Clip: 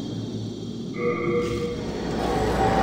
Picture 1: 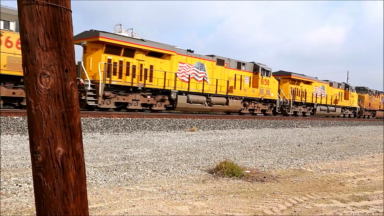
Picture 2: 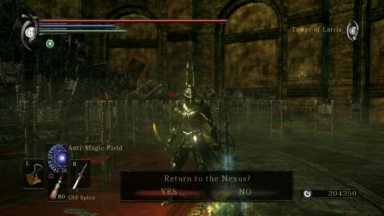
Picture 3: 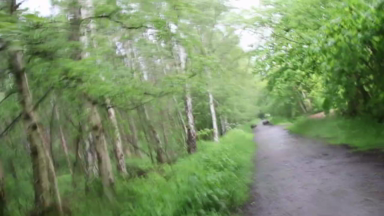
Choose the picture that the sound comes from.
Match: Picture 2